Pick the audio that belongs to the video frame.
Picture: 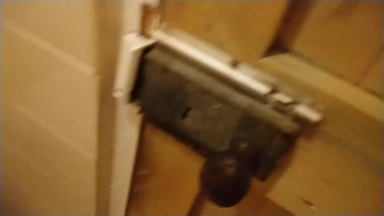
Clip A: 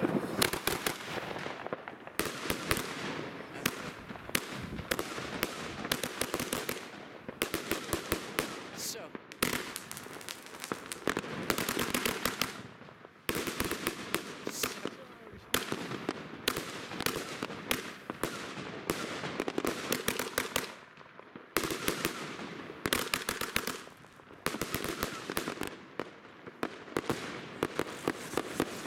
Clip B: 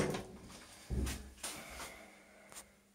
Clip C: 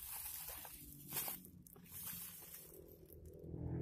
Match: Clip B